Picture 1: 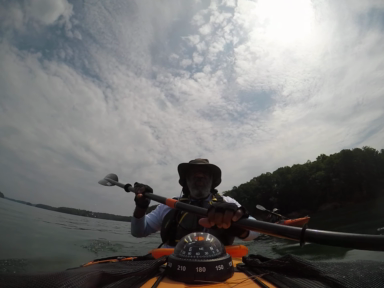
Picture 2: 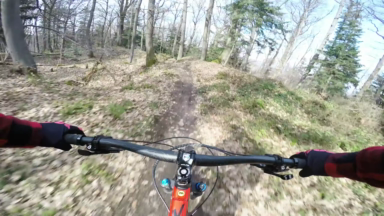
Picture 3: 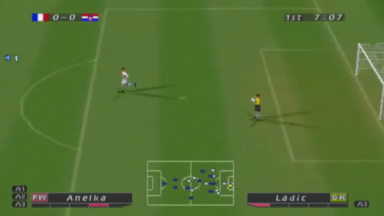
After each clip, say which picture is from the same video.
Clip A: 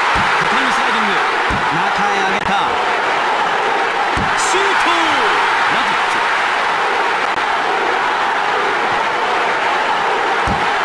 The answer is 3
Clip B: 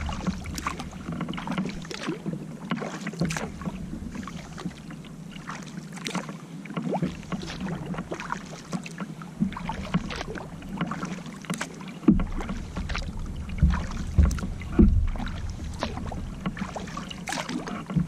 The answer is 1